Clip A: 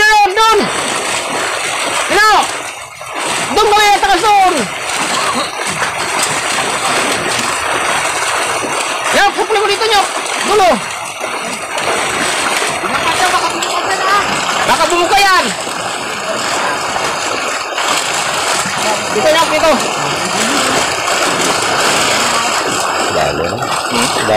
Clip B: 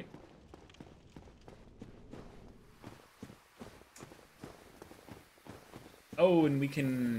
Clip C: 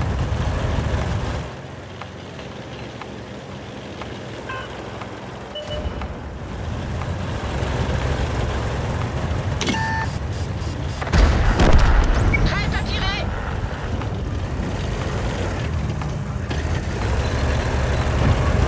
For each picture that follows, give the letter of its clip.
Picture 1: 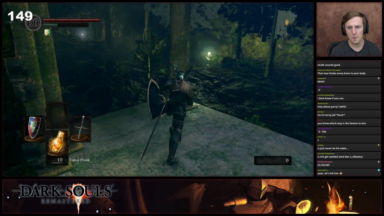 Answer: B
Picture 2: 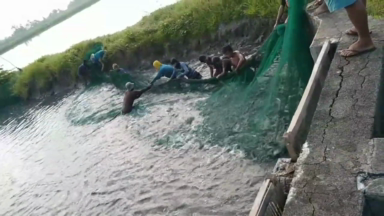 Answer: A